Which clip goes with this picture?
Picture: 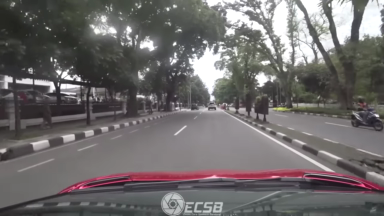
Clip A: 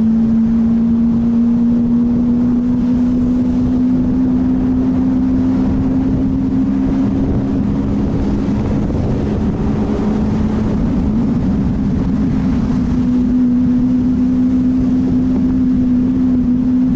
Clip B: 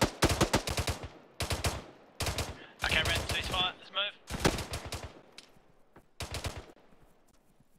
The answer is A